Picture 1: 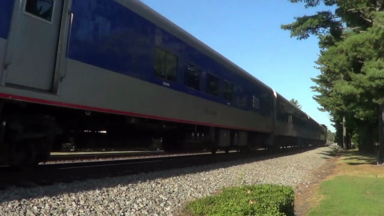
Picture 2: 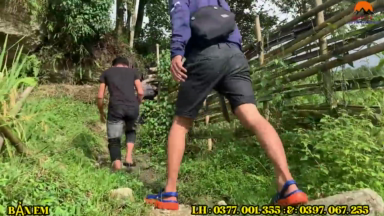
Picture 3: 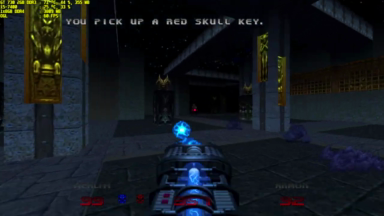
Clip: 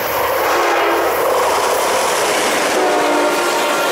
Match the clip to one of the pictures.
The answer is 1